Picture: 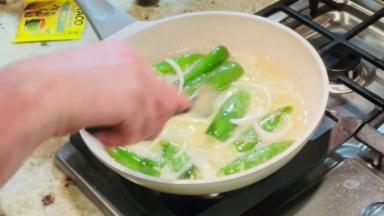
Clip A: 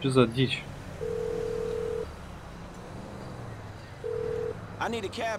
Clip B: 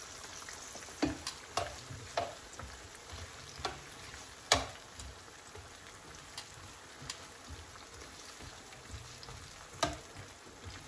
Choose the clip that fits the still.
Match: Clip B